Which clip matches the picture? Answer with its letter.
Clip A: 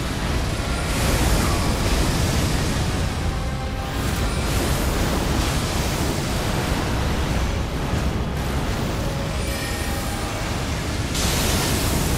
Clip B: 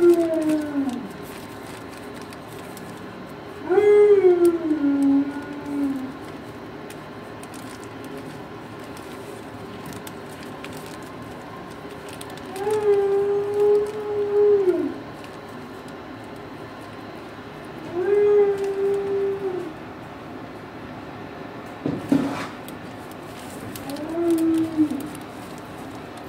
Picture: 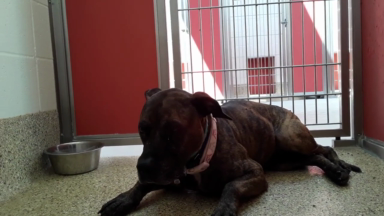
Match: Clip B